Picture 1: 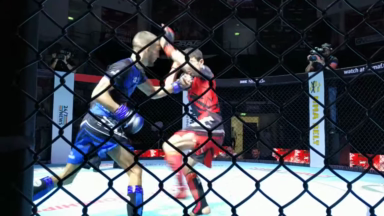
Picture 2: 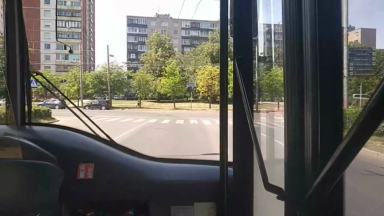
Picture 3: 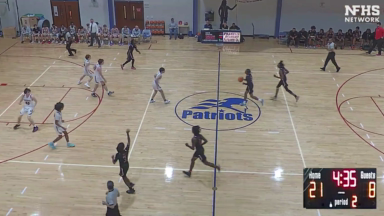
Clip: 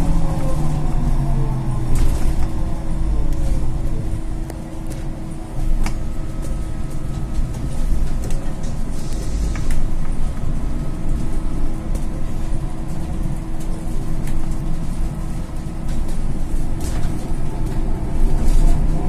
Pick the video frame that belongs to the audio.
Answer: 2